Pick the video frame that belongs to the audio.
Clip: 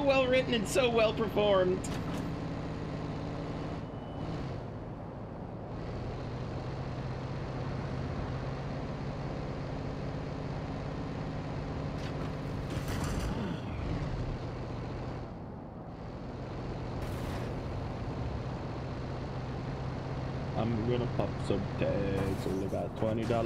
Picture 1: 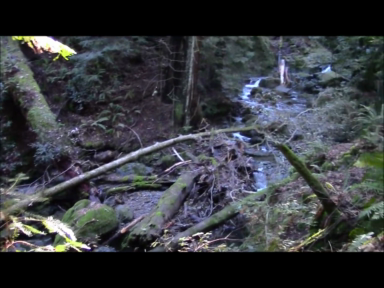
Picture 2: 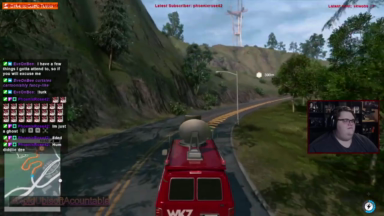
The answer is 2